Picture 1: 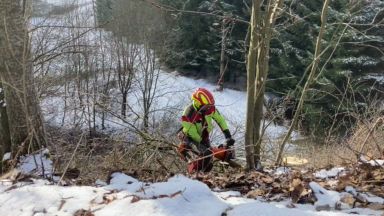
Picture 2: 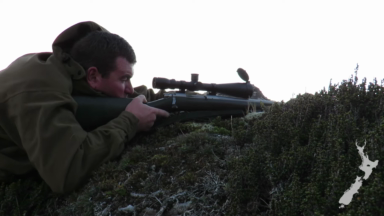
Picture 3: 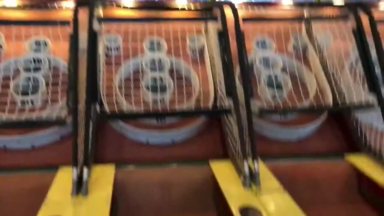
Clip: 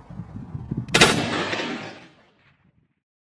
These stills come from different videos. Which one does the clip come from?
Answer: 2